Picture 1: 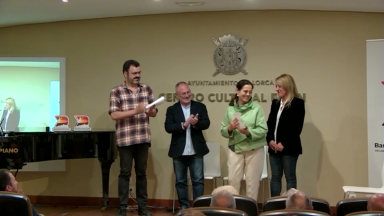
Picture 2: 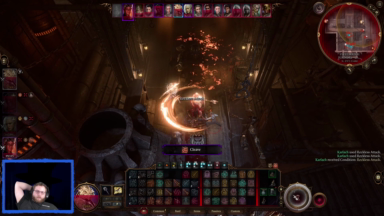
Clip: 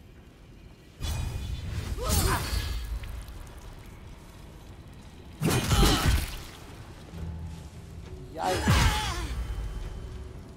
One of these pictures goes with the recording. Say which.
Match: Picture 2